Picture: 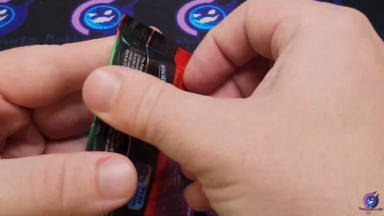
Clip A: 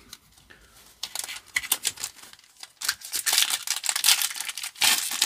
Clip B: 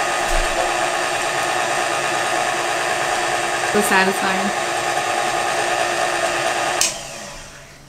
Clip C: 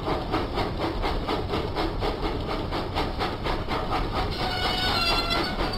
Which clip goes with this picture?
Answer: A